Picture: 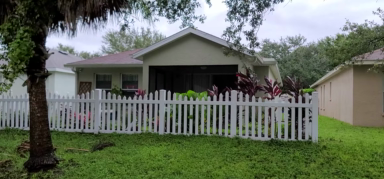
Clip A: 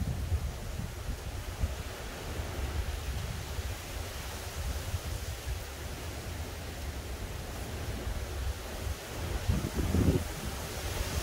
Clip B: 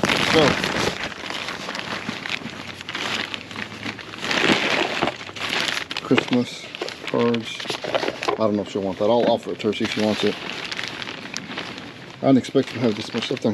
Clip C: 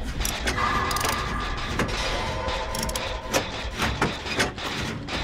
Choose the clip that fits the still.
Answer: A